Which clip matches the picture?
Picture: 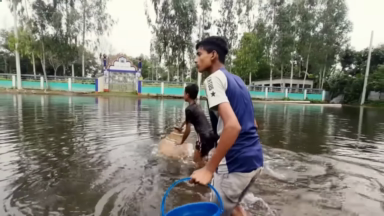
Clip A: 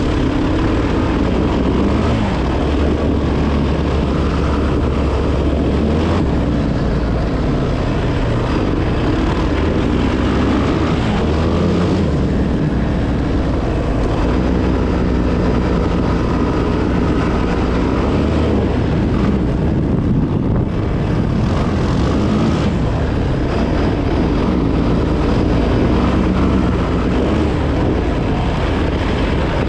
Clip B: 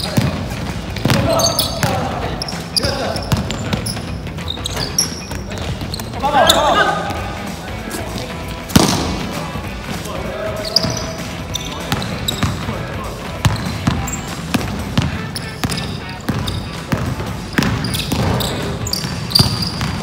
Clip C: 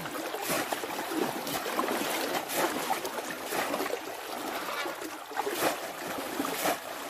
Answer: C